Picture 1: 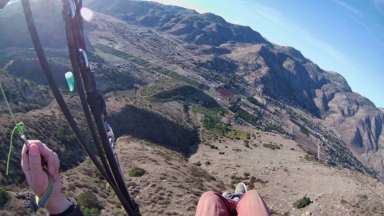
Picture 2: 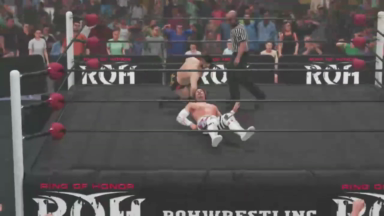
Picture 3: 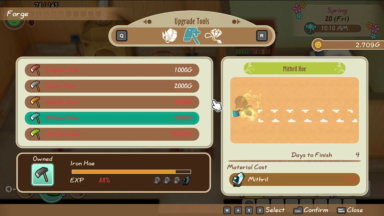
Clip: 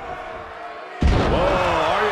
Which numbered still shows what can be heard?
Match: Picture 2